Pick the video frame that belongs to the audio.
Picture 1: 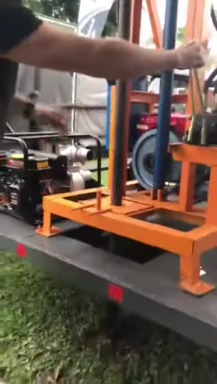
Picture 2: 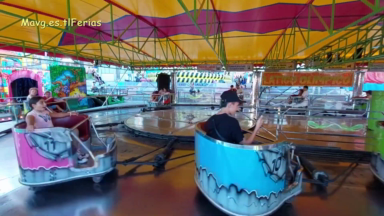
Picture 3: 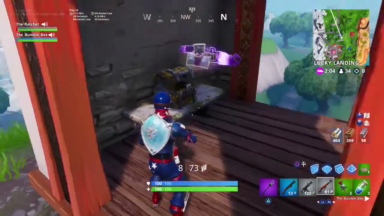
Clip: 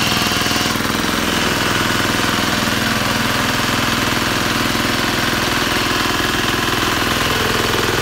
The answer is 1